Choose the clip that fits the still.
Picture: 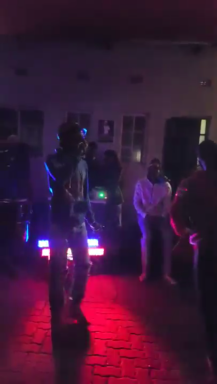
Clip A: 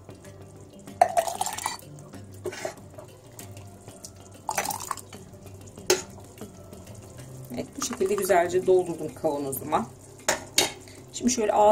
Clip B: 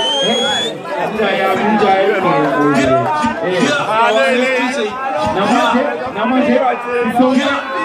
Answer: B